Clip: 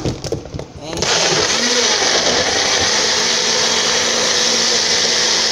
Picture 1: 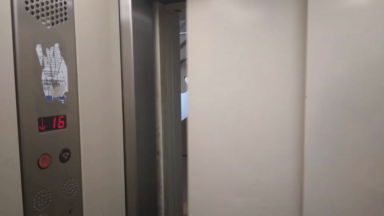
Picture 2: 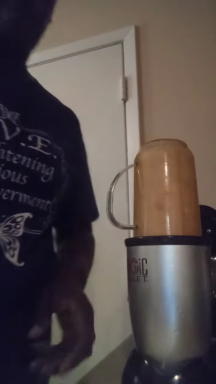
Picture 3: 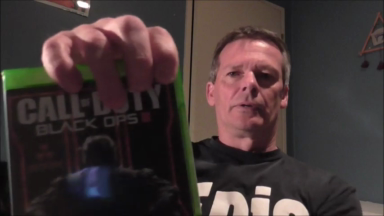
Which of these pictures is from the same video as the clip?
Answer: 2